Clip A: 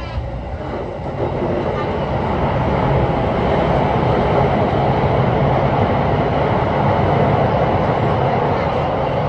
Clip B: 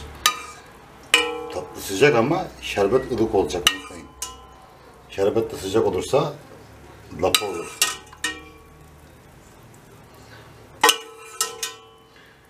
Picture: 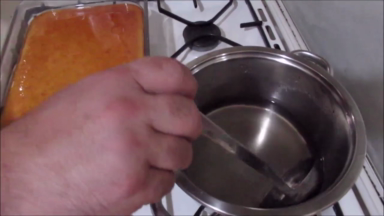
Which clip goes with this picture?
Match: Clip B